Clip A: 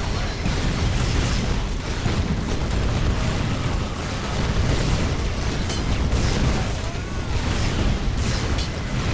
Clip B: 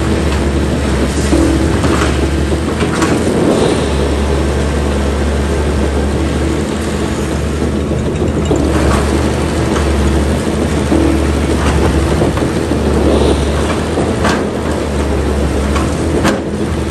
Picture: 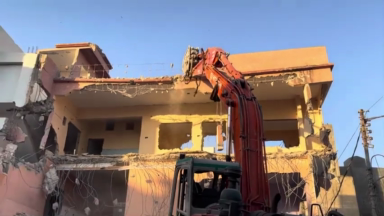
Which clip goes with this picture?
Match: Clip B